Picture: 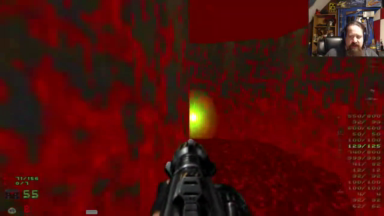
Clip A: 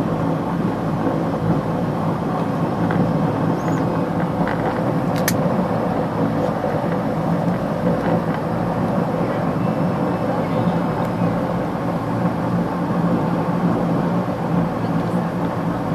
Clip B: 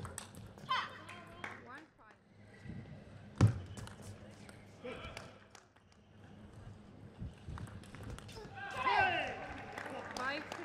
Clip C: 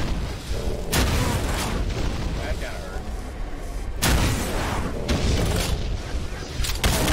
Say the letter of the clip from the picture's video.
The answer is C